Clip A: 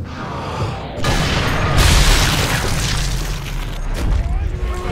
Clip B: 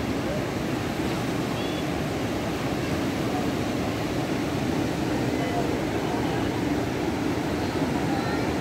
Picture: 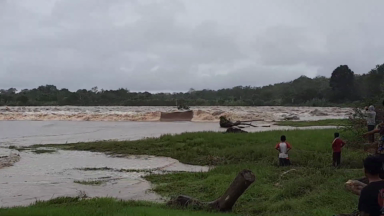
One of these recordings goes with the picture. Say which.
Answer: B